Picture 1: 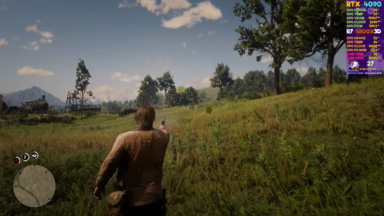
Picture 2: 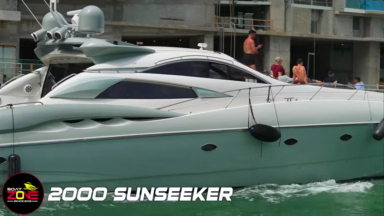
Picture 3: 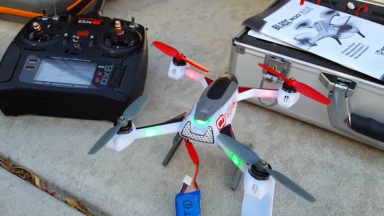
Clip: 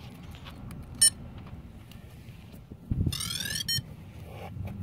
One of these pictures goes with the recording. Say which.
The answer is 3